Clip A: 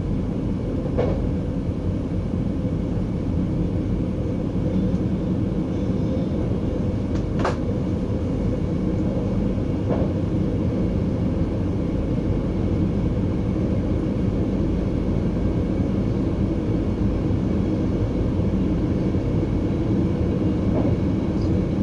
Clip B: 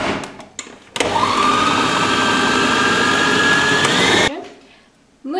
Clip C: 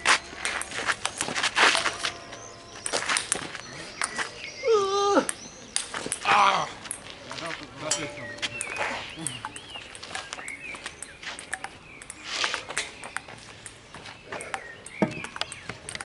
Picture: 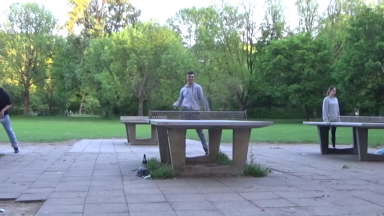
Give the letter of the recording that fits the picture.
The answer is C